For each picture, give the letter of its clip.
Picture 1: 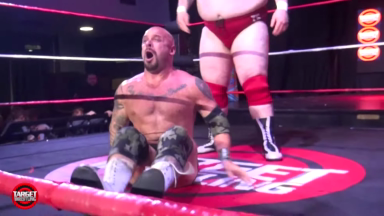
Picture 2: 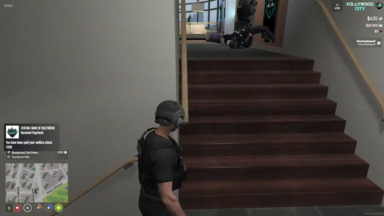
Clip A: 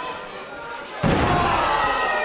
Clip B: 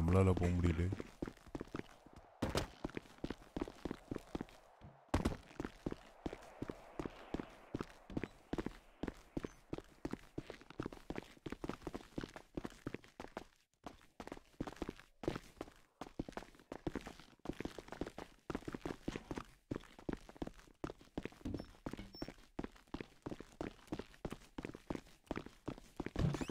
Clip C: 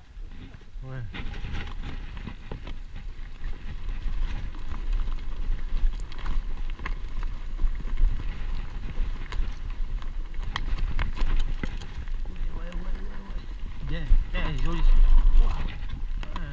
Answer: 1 A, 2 B